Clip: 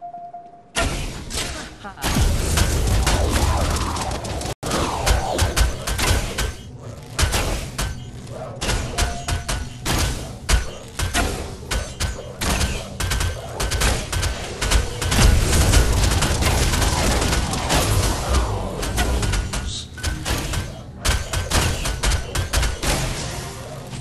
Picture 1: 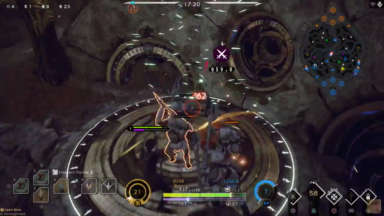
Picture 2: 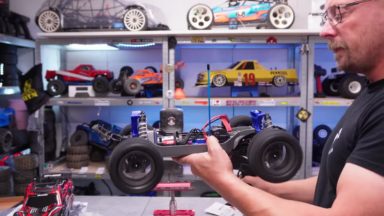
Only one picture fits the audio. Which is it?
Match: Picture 1